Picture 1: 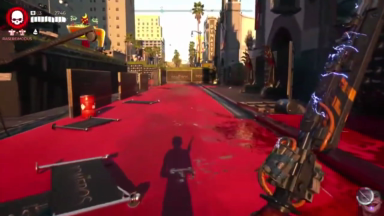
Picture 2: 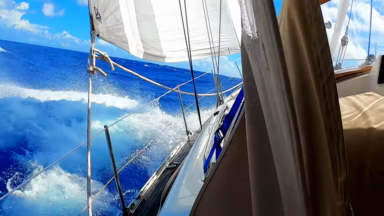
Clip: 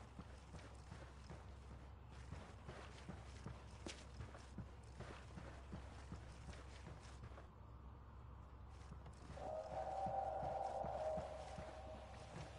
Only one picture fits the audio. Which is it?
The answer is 1